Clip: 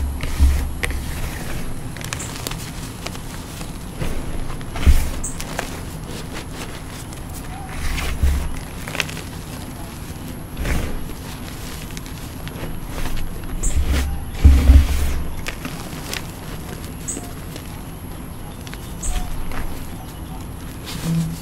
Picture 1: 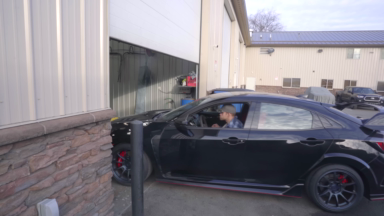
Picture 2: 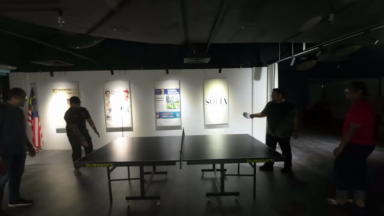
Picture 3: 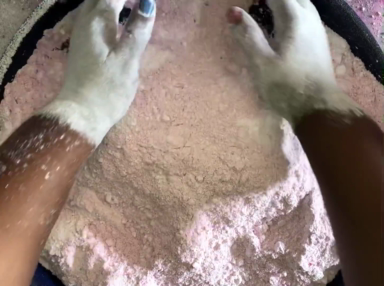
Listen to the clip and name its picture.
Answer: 3